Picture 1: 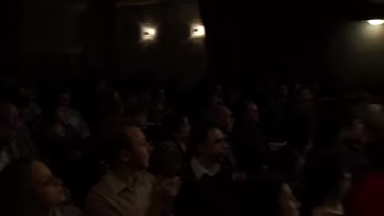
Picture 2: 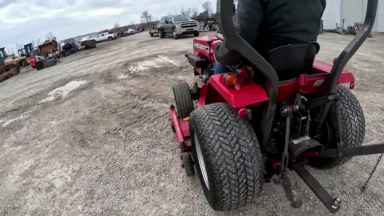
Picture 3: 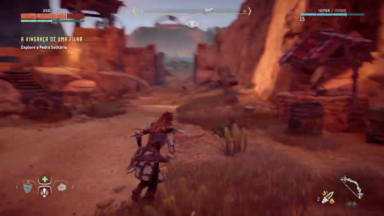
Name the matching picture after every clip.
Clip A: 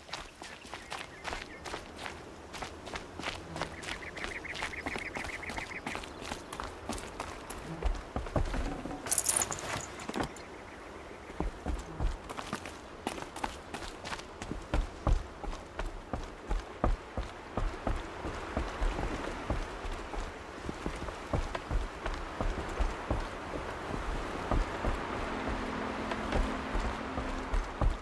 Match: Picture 3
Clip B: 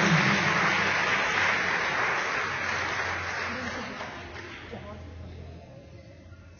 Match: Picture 1